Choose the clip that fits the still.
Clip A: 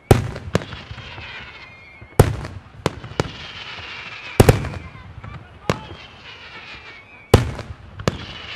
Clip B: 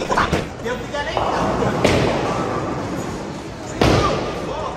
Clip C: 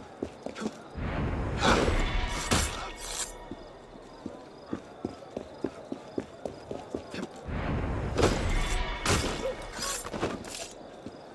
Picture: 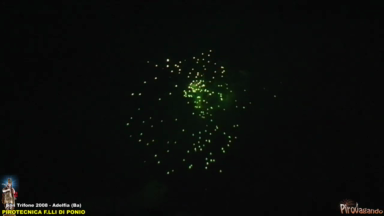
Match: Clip A